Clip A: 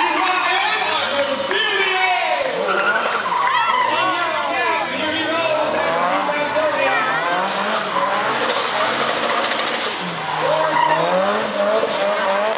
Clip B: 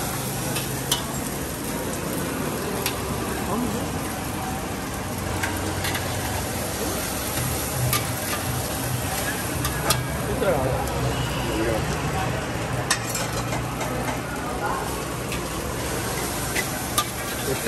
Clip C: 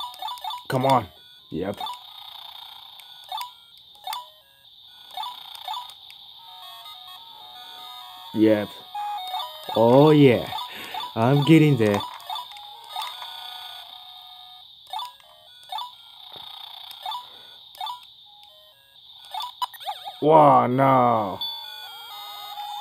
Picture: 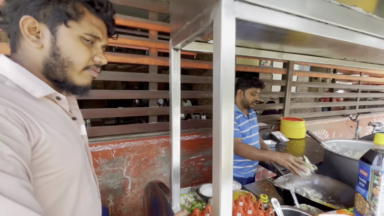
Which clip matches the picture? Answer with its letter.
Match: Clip B